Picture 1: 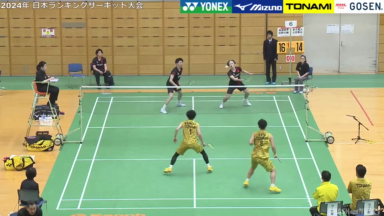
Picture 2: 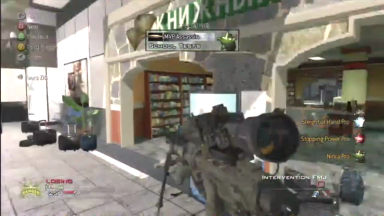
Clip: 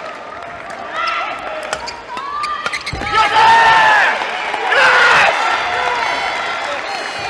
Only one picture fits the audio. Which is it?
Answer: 1